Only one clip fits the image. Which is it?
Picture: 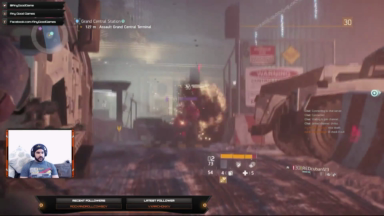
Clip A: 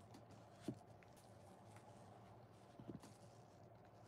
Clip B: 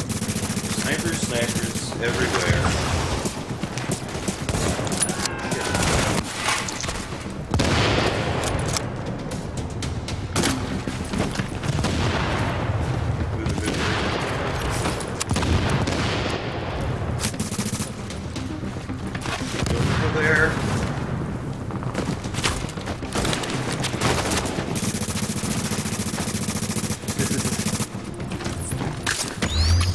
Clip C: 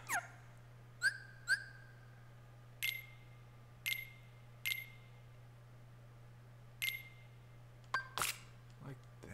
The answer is B